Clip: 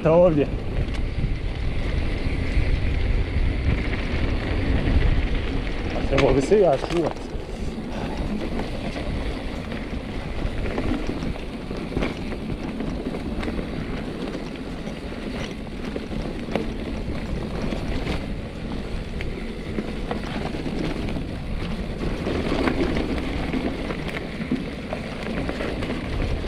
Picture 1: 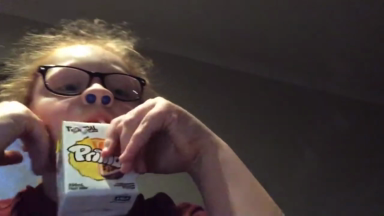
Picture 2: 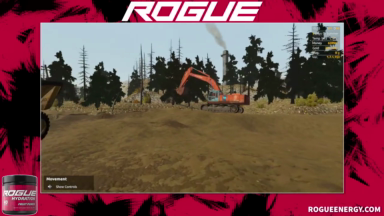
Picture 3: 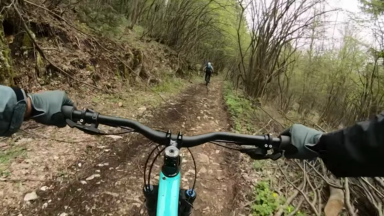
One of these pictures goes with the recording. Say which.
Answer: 3